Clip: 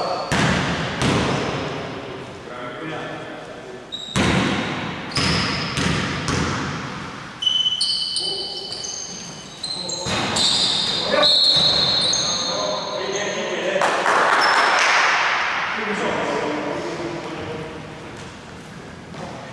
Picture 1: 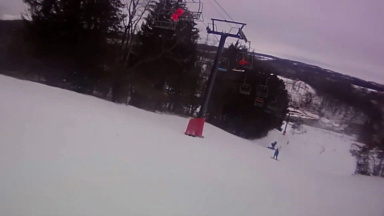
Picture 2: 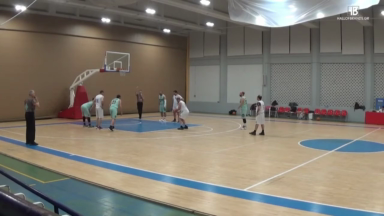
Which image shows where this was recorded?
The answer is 2